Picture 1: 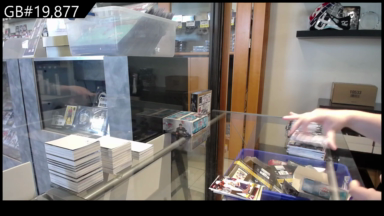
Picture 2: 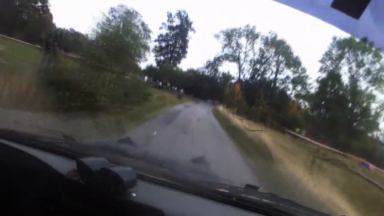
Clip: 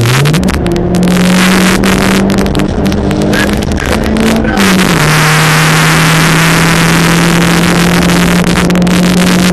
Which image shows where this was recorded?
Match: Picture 2